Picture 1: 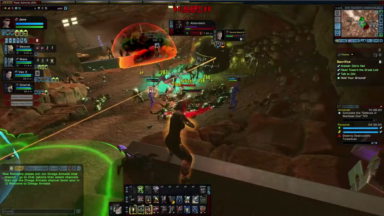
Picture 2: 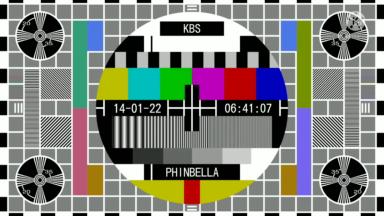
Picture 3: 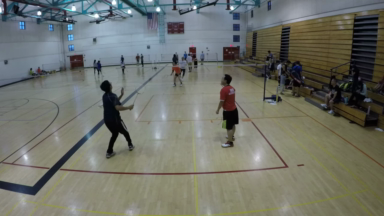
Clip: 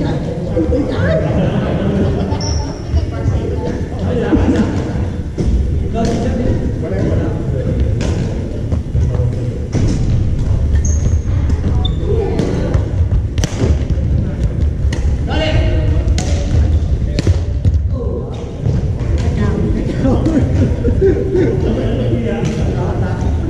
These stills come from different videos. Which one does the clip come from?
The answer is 3